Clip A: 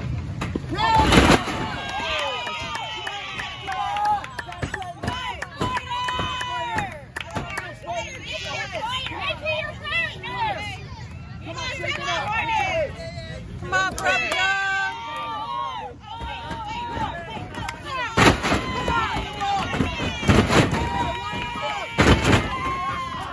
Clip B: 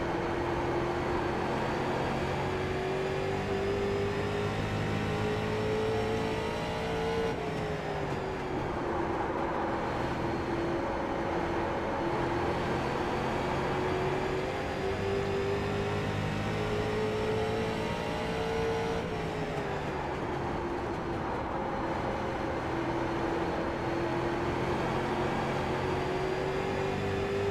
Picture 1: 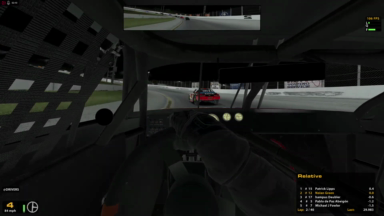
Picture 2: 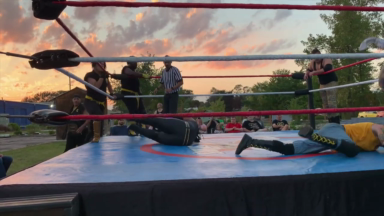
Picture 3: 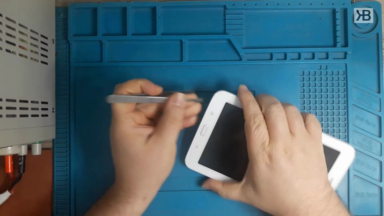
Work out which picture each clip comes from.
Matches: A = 2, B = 1